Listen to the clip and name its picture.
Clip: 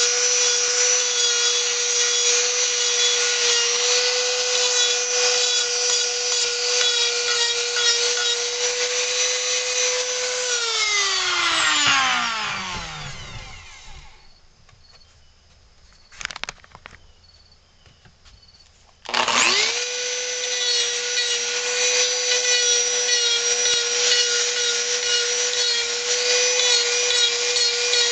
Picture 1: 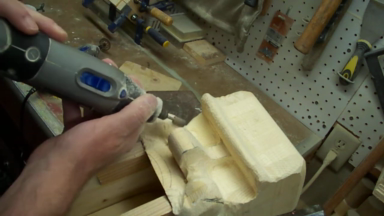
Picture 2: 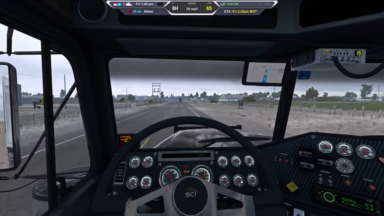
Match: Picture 1